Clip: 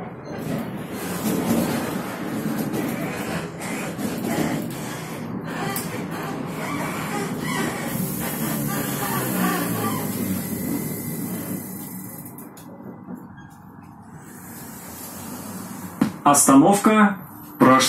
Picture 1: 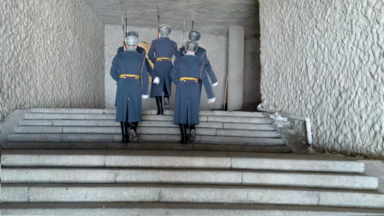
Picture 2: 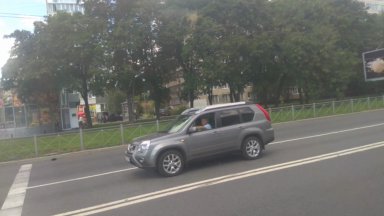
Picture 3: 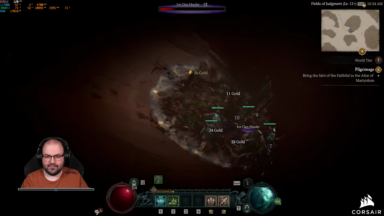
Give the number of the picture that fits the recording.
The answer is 2